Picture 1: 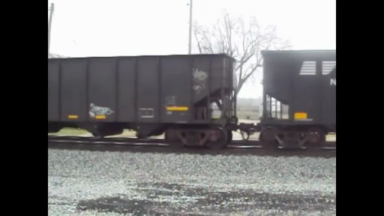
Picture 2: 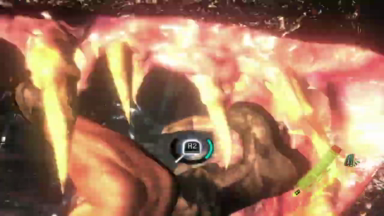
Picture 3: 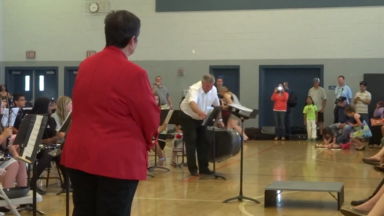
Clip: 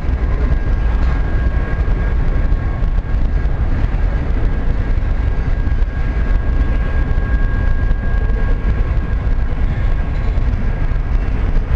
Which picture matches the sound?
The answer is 1